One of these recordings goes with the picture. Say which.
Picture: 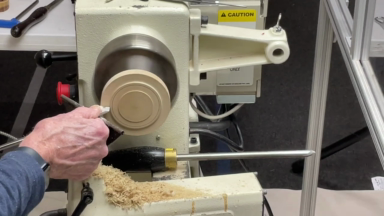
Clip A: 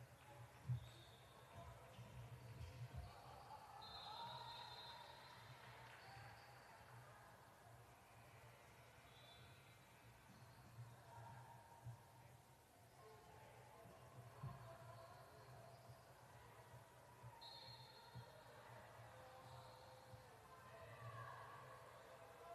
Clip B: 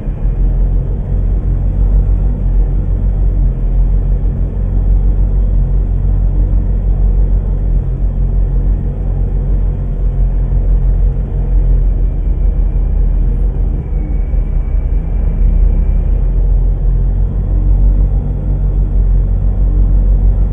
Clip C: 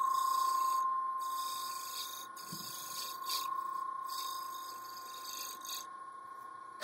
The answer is C